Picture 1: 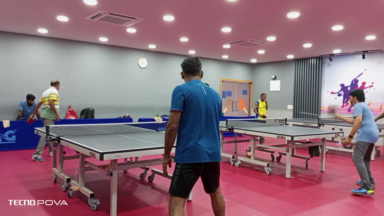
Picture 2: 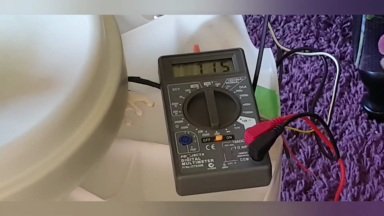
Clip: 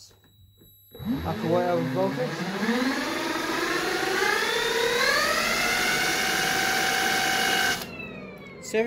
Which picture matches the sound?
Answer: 2